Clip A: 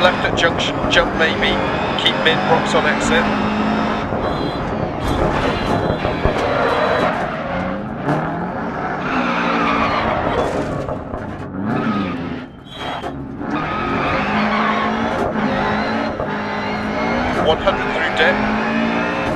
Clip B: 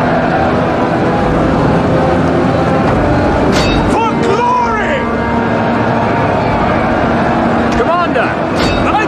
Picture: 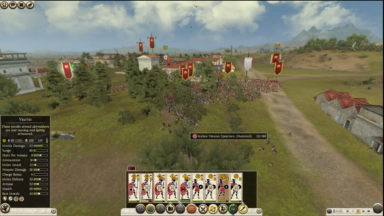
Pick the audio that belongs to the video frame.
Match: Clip B